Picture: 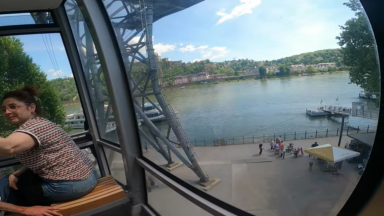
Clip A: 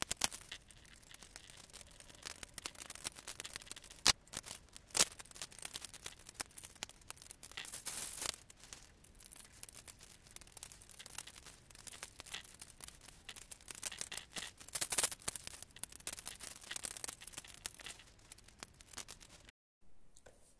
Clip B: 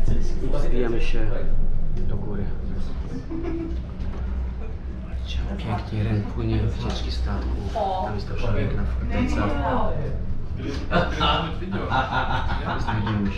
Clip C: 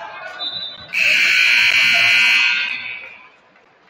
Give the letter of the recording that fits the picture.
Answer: B